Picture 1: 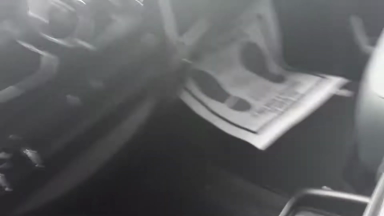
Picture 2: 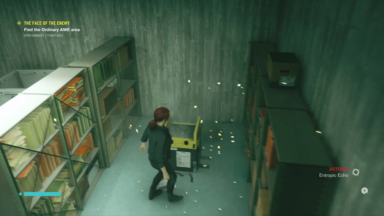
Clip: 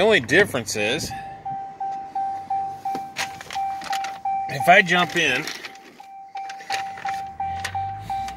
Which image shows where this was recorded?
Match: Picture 1